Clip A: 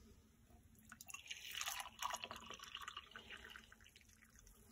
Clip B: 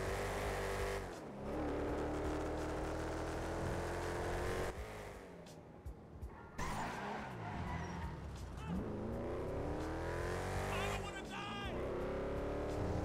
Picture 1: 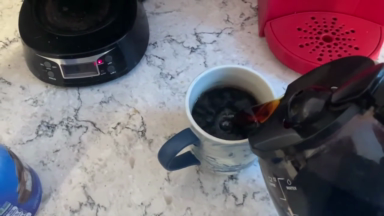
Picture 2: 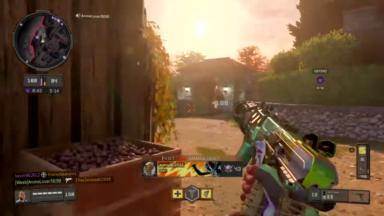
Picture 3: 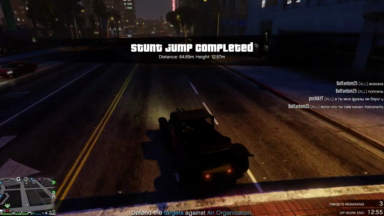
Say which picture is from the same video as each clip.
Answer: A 1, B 3